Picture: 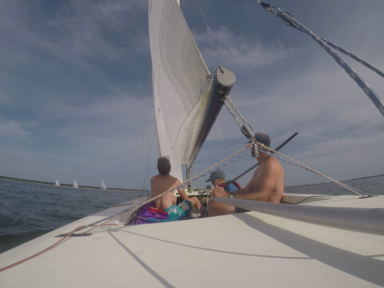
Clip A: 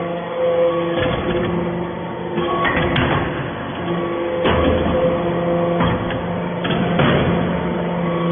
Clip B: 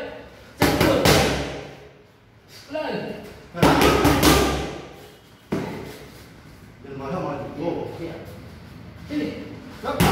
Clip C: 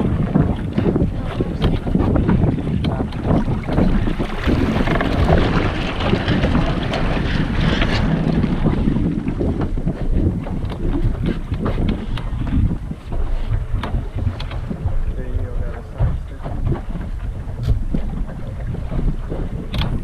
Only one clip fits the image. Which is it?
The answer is C